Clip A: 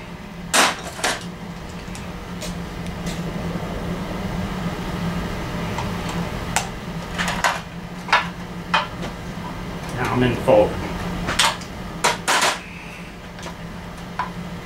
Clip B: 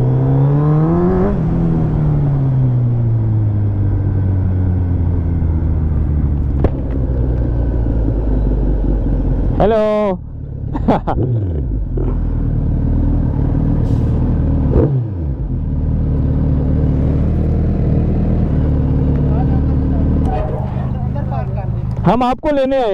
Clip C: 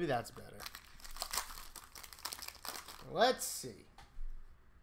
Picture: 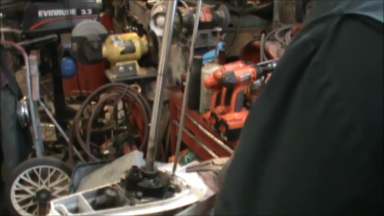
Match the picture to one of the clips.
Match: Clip A